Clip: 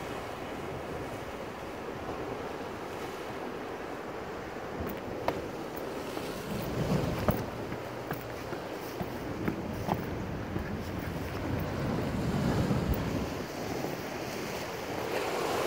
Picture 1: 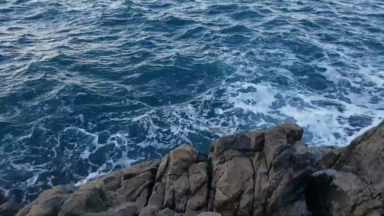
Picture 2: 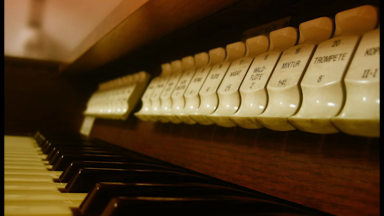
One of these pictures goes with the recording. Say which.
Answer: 1